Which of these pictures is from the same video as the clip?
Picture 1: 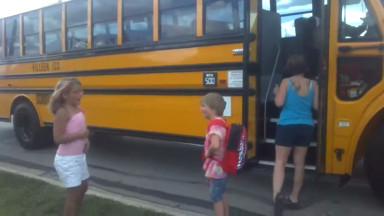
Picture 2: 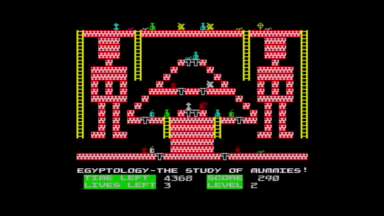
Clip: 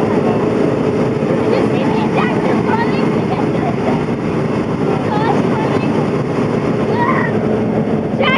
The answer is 1